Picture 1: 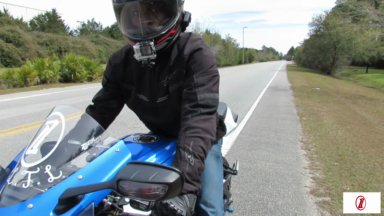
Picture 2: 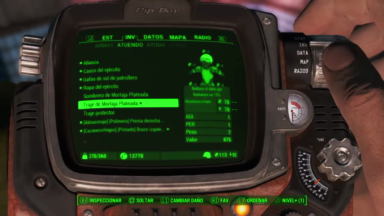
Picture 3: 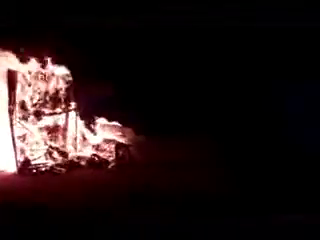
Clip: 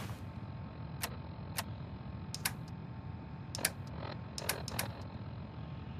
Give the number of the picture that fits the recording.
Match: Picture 2